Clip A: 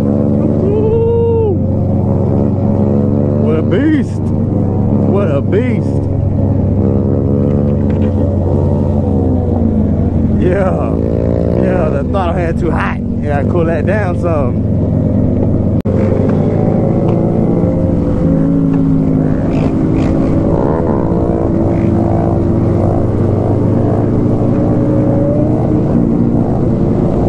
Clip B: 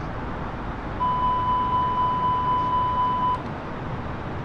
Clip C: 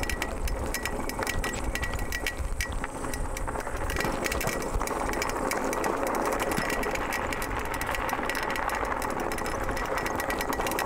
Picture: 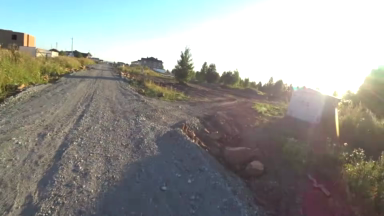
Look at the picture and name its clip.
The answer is C